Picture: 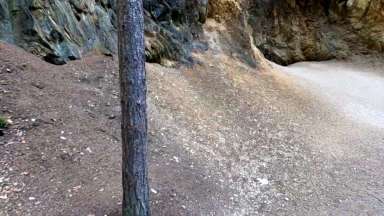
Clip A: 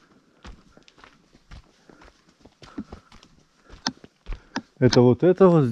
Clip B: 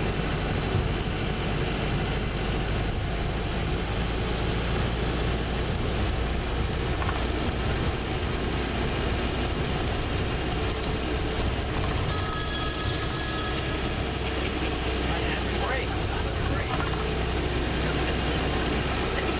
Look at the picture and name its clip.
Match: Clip A